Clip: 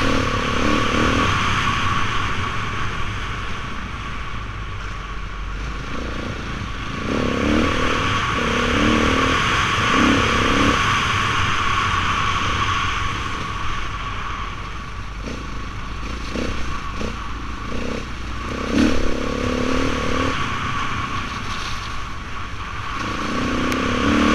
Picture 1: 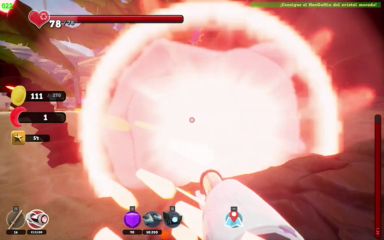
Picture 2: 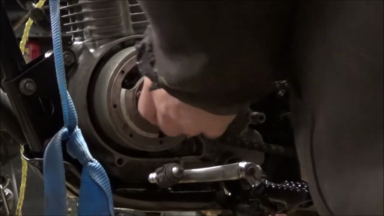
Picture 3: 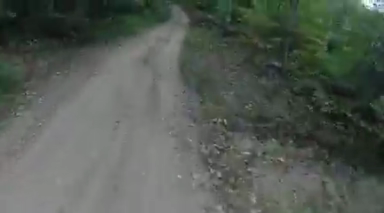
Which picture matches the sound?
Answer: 3